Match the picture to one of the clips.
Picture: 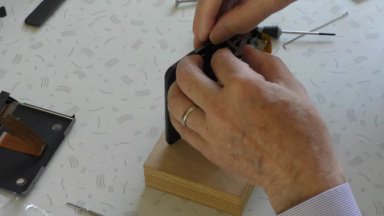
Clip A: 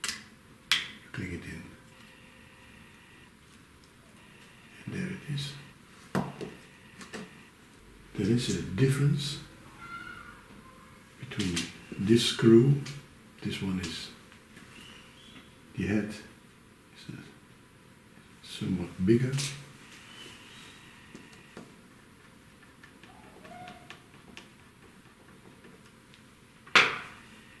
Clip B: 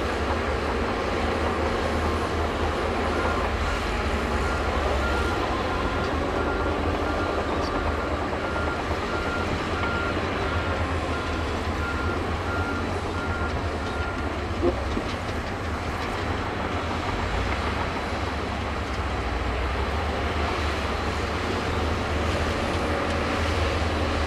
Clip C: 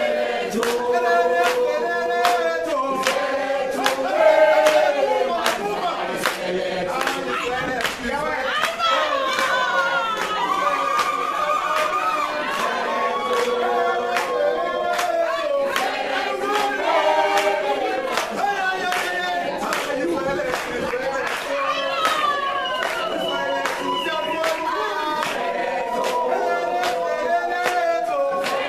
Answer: A